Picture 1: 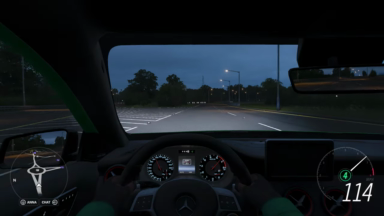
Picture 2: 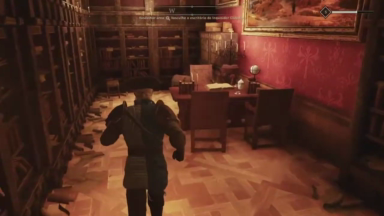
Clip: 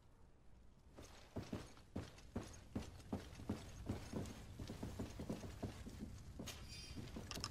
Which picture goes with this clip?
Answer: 2